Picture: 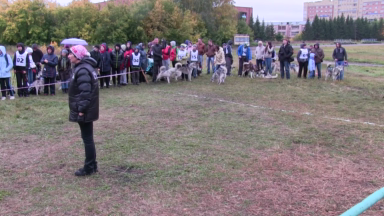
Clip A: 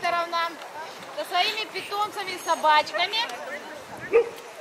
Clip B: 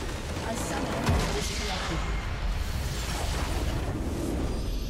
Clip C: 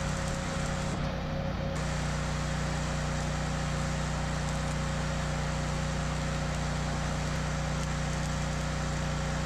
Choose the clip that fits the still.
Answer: A